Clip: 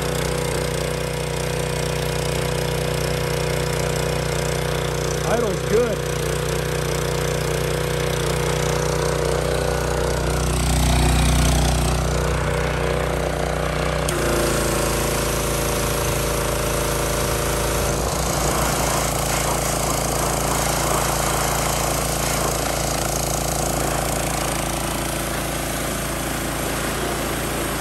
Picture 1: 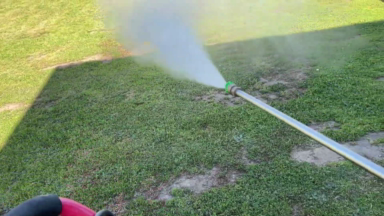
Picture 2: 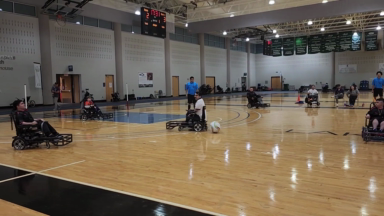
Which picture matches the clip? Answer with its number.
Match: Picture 1